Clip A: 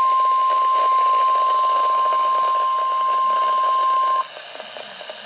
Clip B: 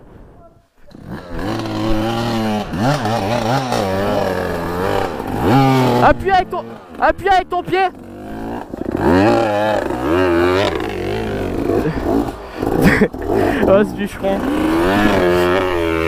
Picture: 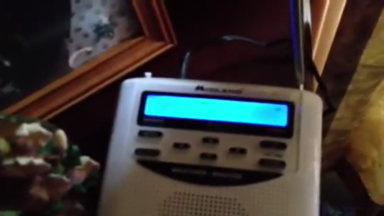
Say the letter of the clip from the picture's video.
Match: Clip A